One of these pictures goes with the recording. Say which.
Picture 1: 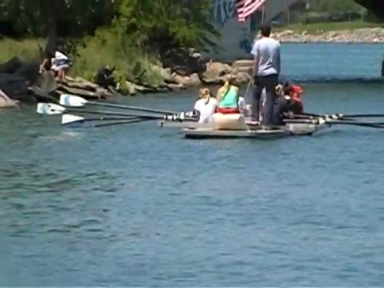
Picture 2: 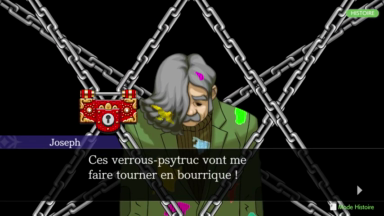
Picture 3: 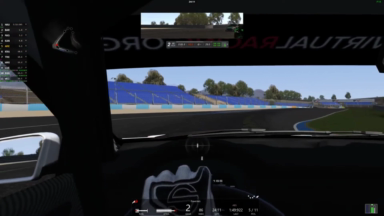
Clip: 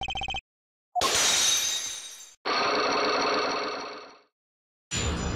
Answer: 2